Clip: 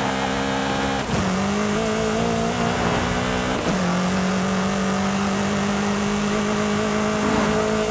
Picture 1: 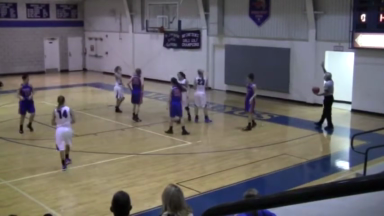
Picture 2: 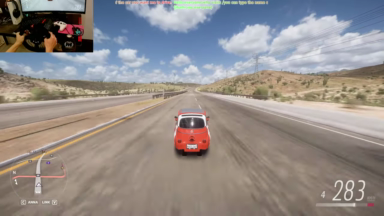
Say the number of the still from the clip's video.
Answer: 2